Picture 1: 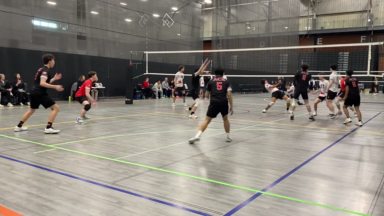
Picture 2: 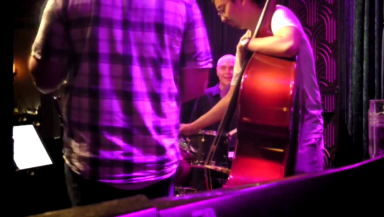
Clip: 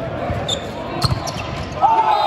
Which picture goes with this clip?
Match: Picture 1